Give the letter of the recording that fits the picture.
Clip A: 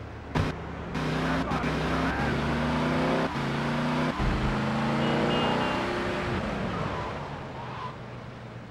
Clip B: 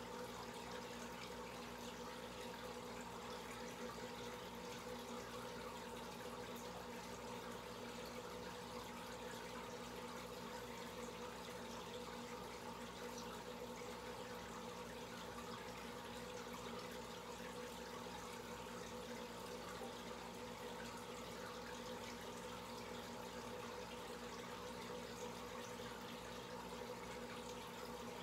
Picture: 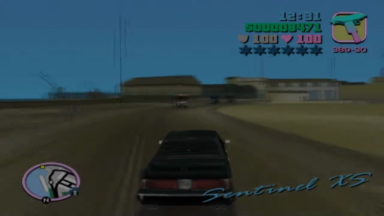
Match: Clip A